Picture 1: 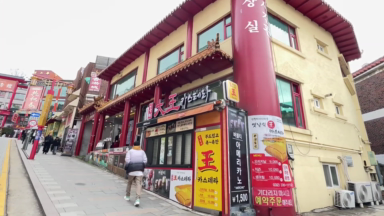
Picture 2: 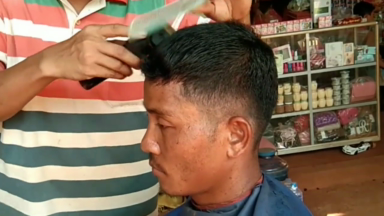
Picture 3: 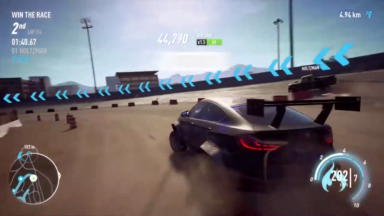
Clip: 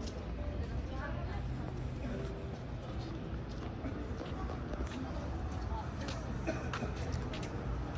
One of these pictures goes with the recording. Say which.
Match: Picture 1